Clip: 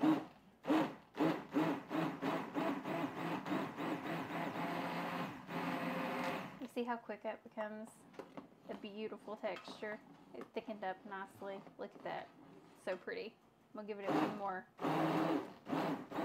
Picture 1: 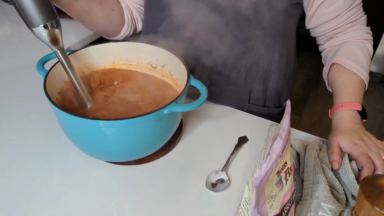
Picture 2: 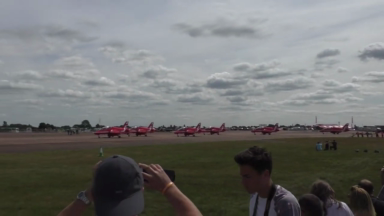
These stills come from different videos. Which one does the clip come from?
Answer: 1